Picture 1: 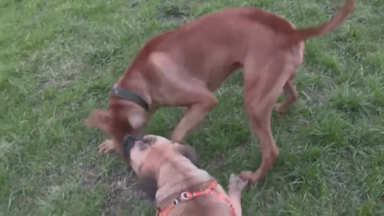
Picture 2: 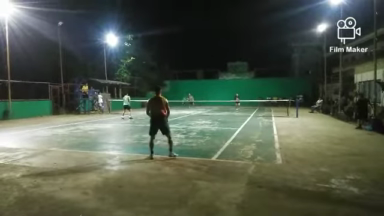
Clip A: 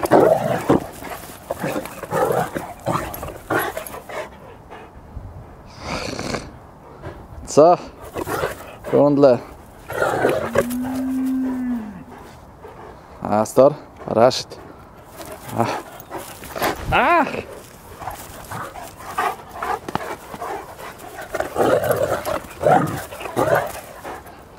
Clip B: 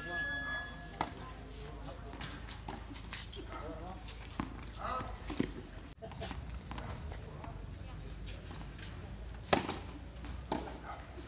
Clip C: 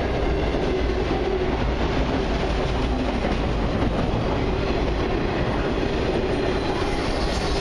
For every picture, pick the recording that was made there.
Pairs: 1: A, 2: B